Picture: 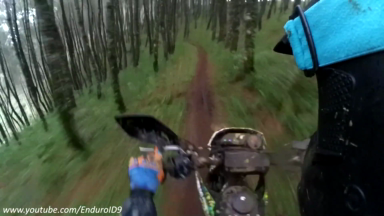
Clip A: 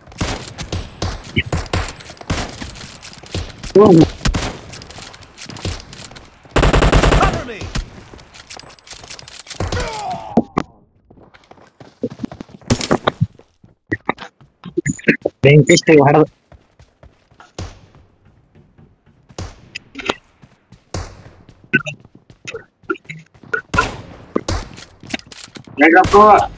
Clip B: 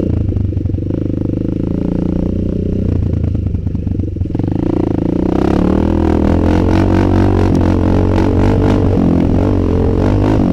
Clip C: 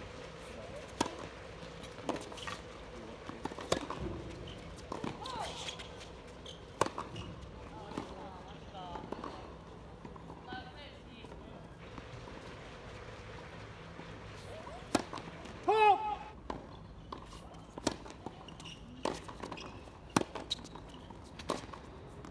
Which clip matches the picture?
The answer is B